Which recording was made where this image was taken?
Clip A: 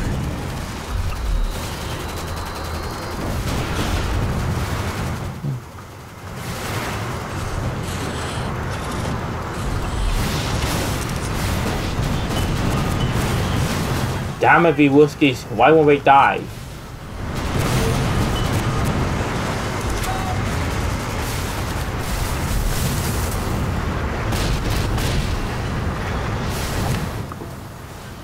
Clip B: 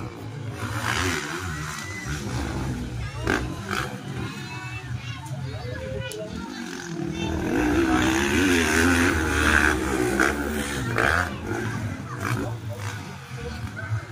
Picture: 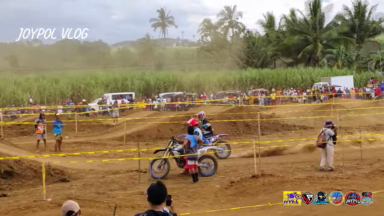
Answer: B